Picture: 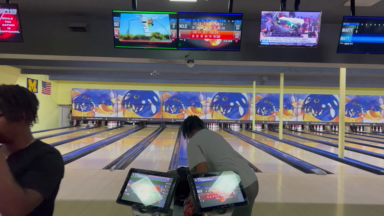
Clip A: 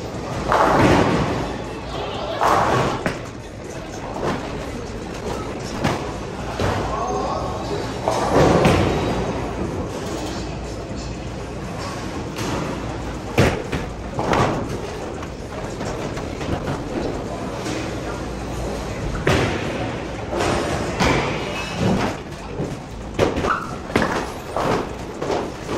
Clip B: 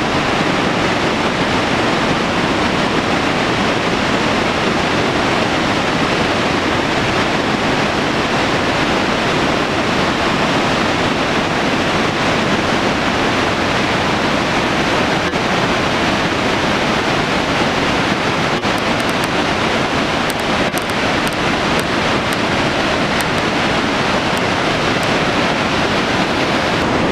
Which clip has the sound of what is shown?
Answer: A